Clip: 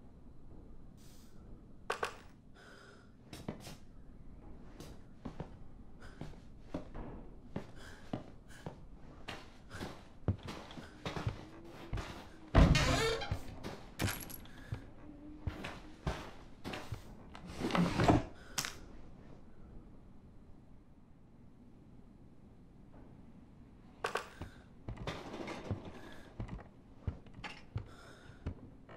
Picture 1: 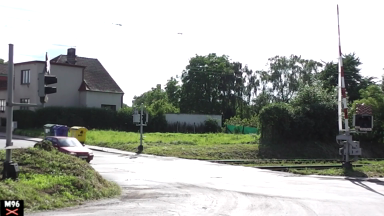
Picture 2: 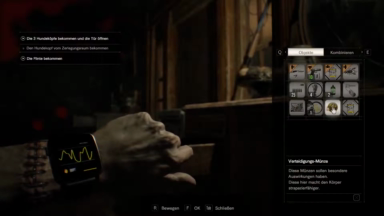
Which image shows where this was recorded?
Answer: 2